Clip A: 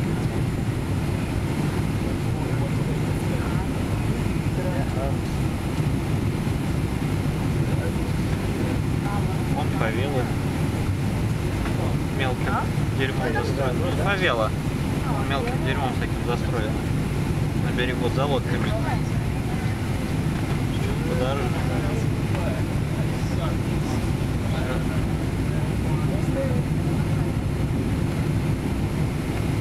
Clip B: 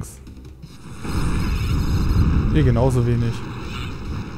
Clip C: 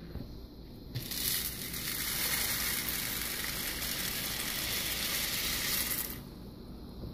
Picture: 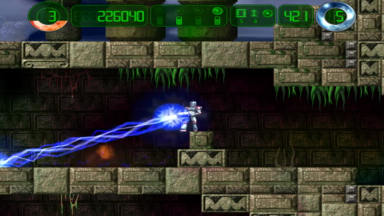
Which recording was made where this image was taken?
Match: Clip B